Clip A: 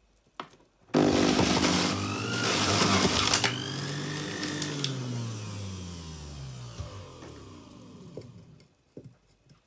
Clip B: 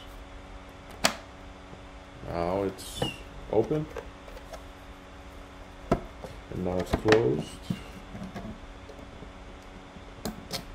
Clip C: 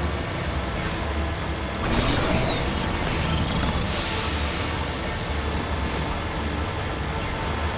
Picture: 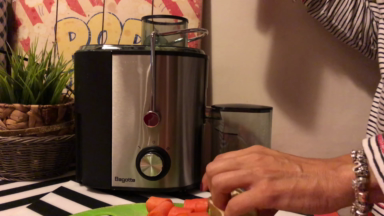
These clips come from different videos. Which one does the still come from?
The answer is A